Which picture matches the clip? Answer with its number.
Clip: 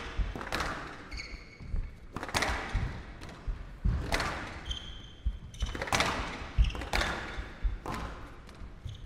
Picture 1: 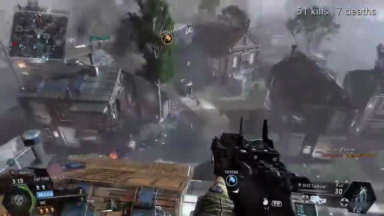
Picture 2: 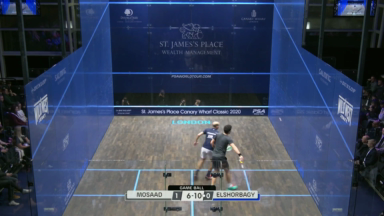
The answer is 2